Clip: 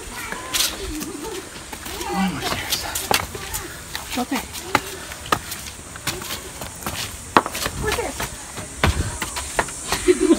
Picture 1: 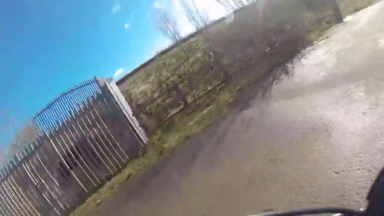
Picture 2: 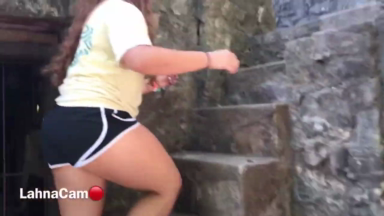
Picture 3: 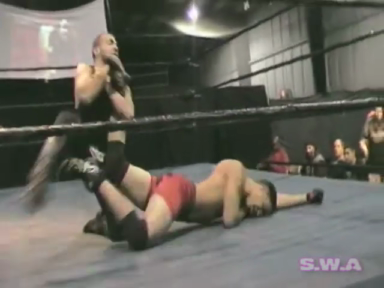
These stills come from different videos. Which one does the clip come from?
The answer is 2